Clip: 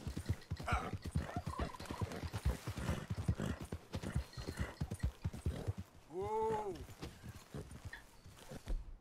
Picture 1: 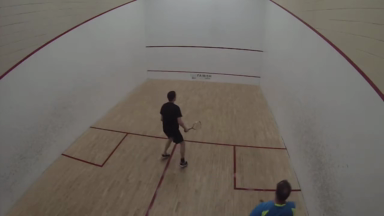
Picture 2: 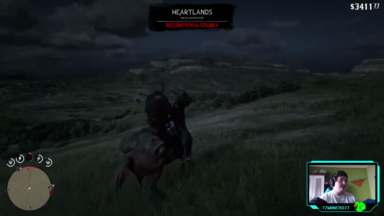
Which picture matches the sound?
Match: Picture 2